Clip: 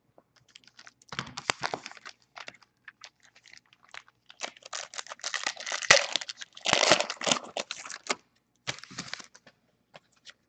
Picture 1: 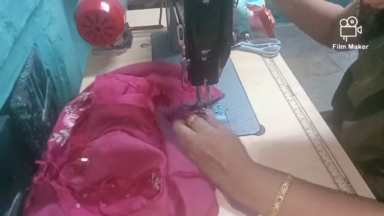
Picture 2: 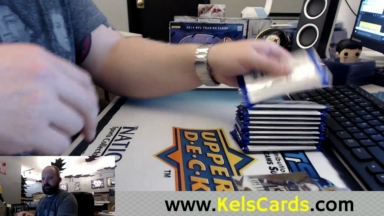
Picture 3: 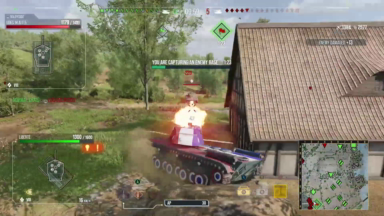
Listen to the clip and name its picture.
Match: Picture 2